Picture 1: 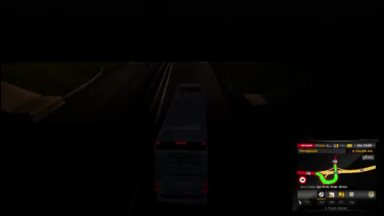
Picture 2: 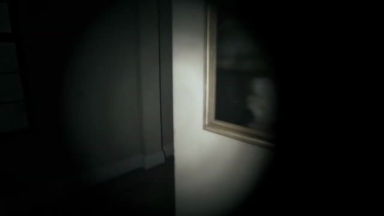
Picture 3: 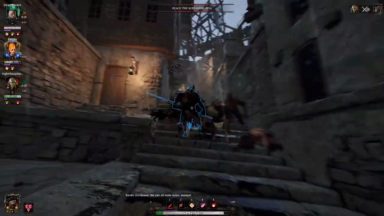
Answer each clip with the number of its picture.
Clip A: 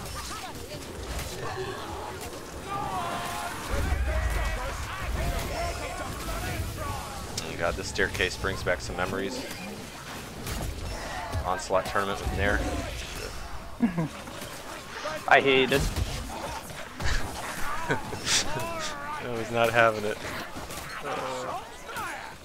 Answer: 3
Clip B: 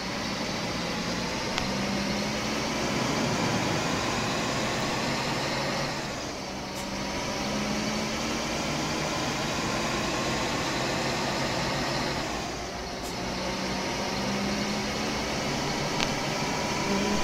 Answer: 1